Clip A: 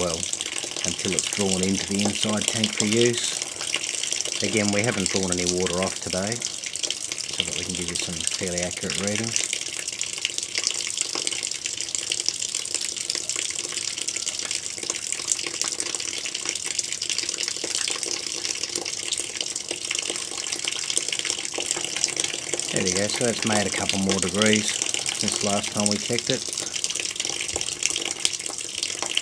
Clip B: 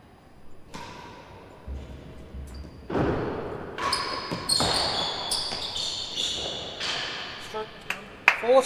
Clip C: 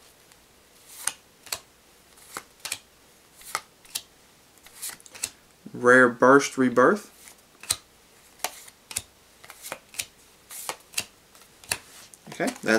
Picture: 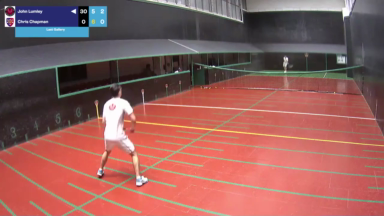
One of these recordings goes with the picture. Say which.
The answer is B